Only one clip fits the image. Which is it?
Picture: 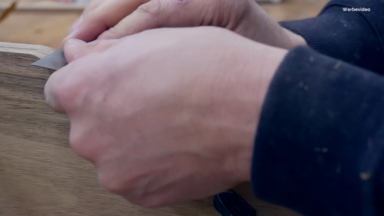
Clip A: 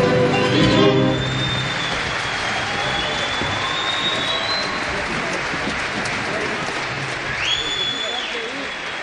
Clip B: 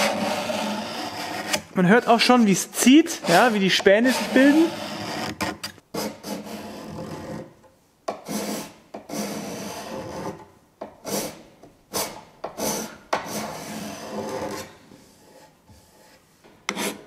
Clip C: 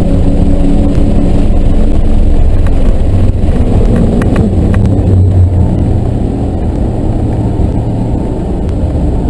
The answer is B